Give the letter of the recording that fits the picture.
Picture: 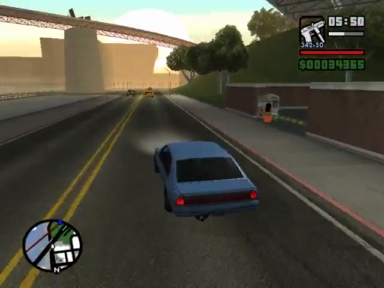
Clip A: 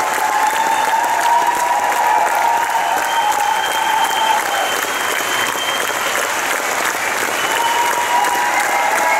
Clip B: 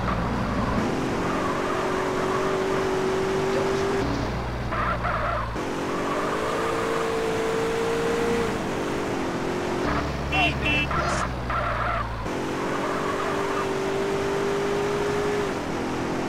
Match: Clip B